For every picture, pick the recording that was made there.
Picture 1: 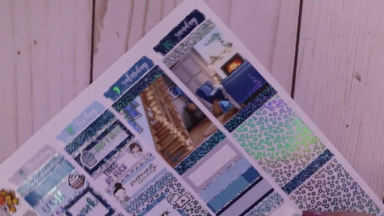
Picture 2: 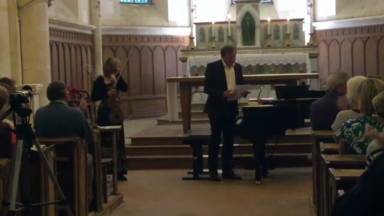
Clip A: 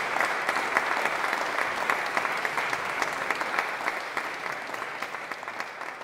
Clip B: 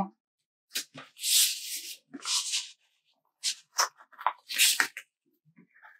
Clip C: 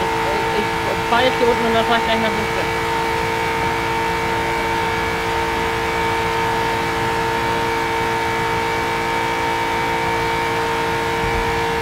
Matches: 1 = B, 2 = A